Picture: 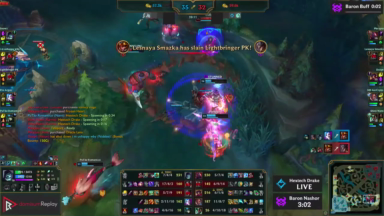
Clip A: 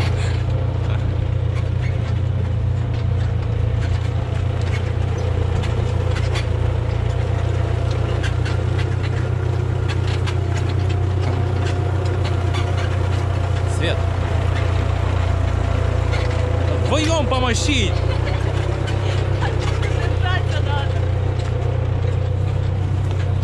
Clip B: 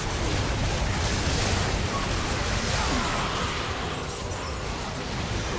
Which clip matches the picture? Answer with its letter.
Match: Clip B